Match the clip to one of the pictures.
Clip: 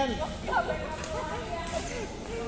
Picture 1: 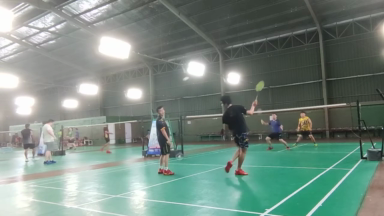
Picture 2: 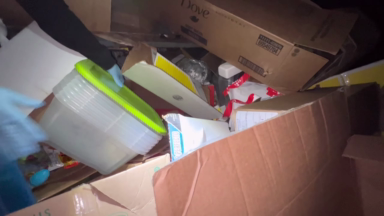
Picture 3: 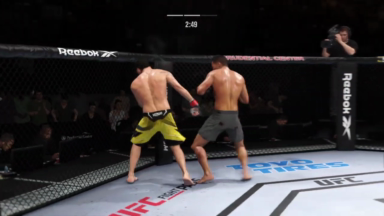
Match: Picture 1